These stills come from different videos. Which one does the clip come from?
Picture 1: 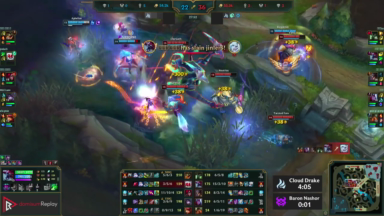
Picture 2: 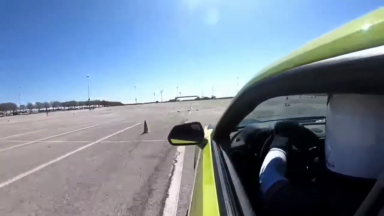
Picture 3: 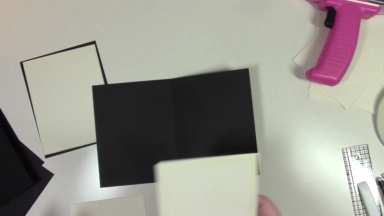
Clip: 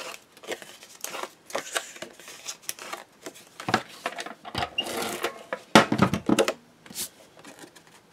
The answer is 3